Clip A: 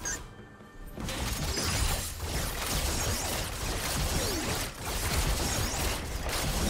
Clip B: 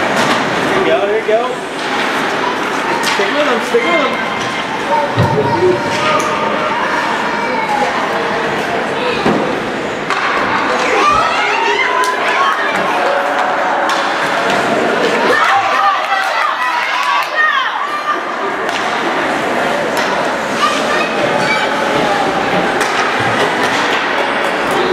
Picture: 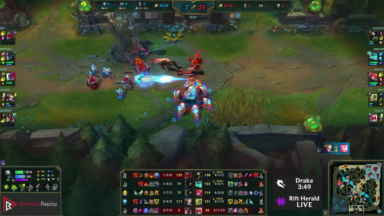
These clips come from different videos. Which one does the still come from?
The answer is A